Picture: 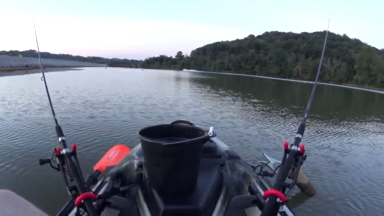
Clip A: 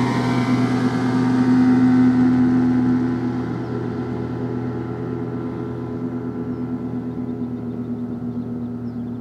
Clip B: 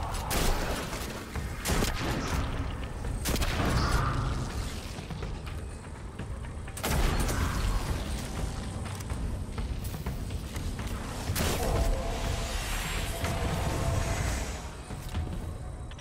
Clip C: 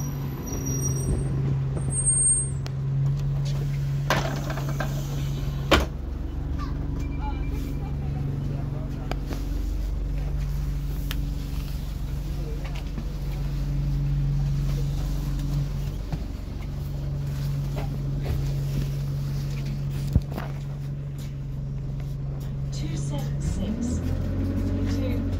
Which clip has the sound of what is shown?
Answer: A